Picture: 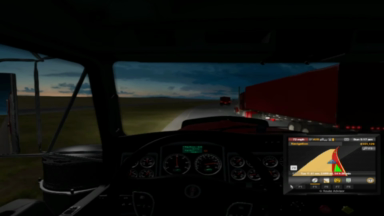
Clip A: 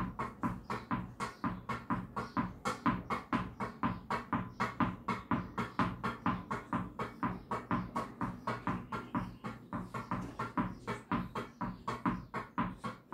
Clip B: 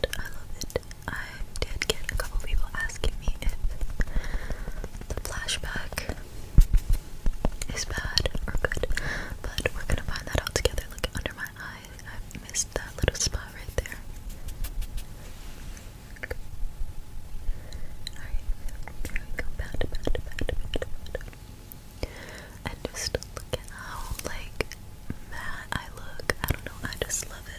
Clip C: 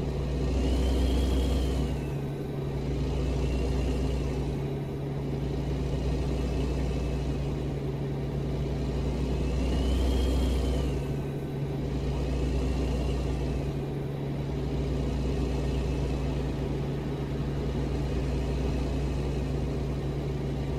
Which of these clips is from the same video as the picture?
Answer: C